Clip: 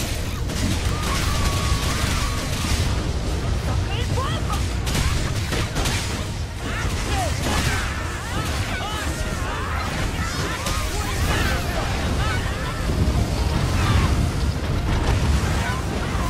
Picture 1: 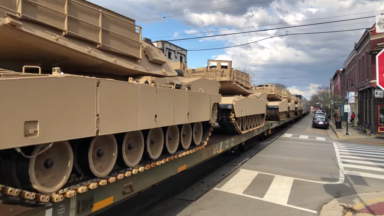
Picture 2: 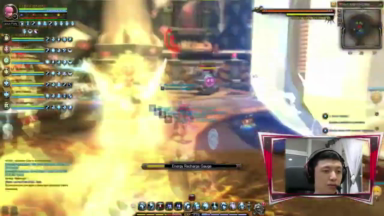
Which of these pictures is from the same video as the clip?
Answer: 2